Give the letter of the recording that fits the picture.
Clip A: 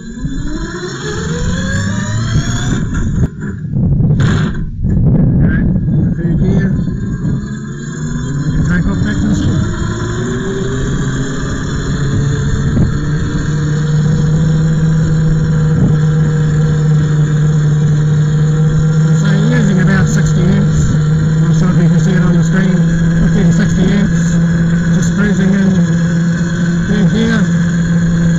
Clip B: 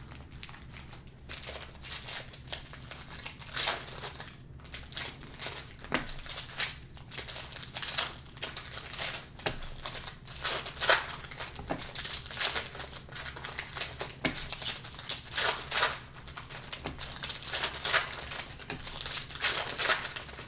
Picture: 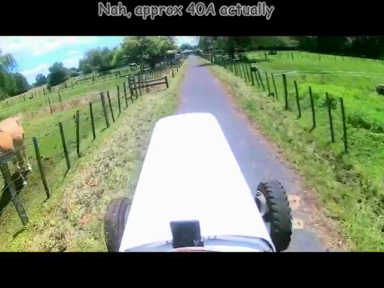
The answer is A